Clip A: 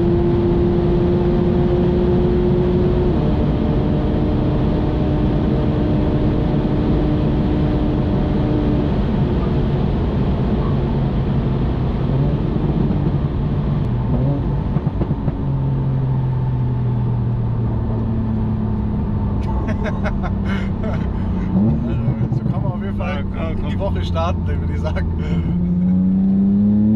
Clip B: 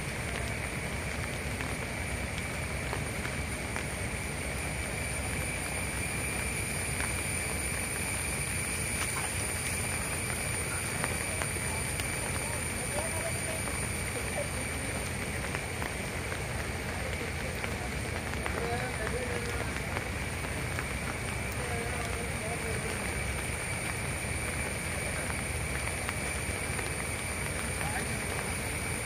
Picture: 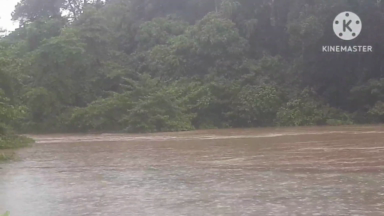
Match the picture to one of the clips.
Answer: B